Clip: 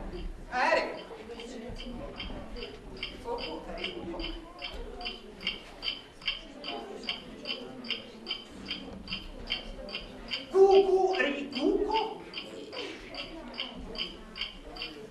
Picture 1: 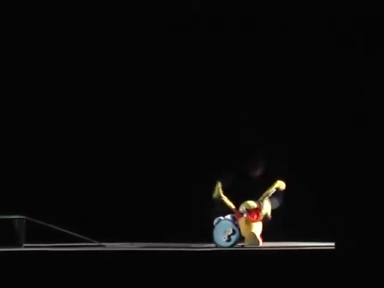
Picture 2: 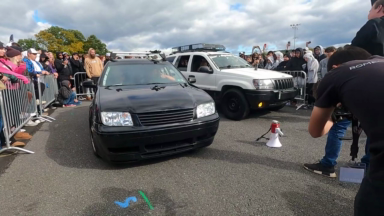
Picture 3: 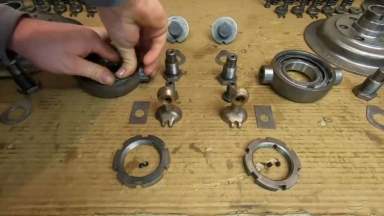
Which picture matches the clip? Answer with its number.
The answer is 1